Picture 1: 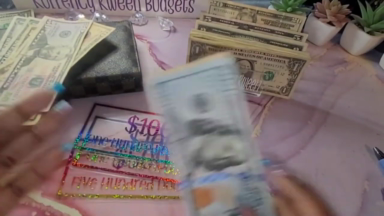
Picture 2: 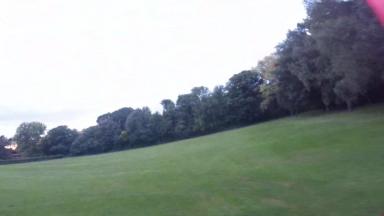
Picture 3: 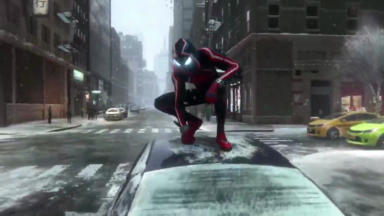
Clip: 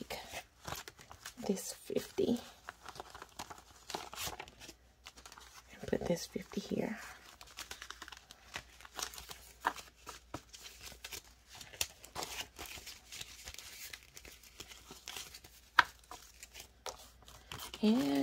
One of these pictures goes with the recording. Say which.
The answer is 1